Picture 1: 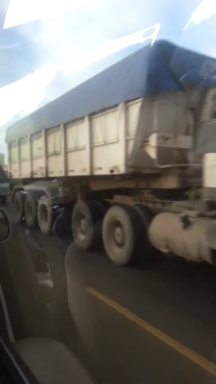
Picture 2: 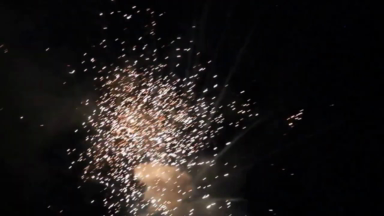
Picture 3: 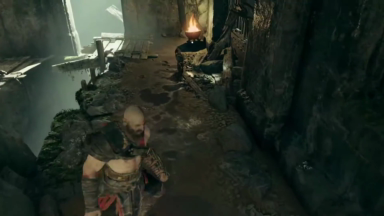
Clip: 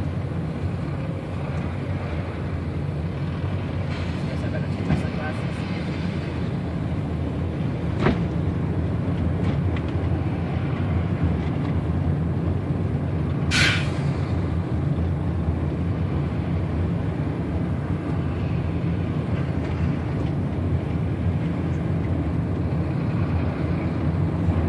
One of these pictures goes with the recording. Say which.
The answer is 1